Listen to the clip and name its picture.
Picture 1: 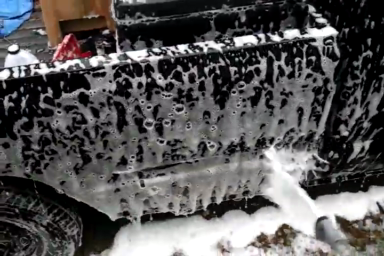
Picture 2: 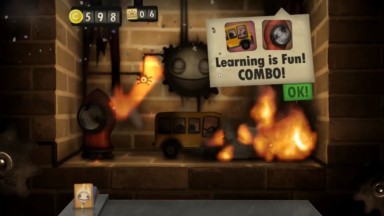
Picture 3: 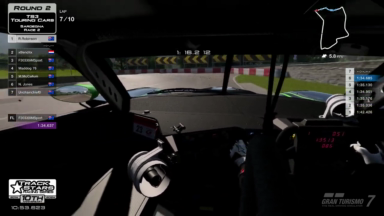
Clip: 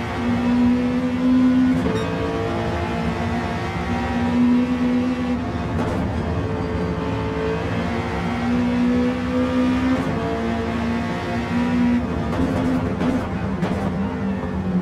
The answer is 3